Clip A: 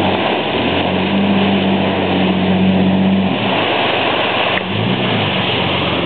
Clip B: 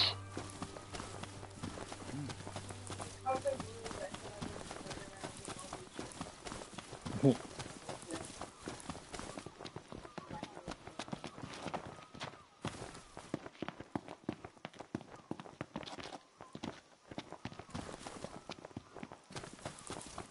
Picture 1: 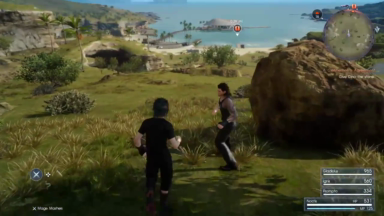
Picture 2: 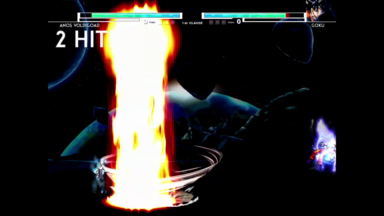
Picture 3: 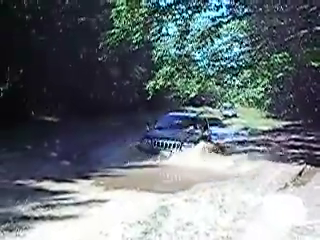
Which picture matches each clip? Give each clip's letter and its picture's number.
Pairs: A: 3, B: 1